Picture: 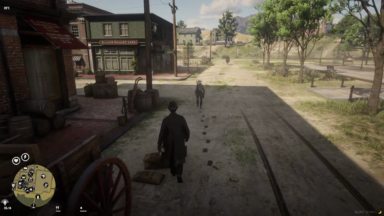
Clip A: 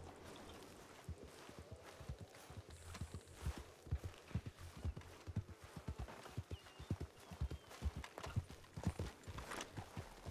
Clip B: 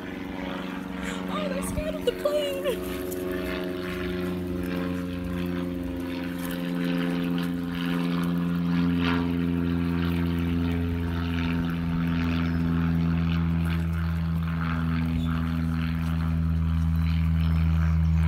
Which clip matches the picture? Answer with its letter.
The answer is A